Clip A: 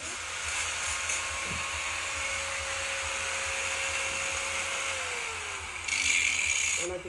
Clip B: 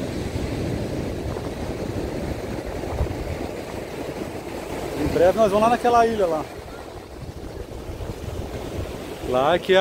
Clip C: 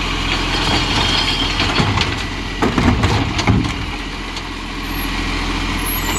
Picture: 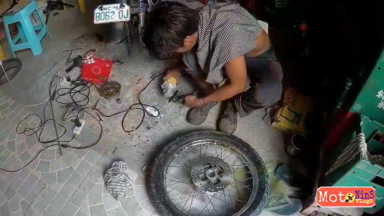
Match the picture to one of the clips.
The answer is A